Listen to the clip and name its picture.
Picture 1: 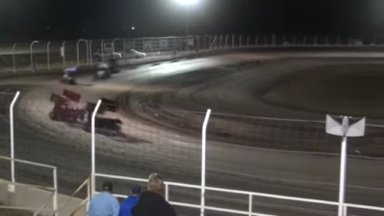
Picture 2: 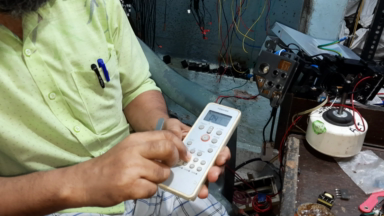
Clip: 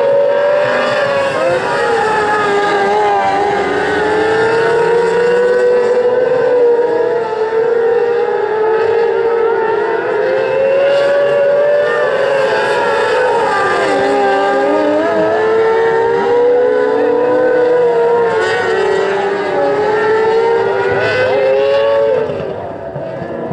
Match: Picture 1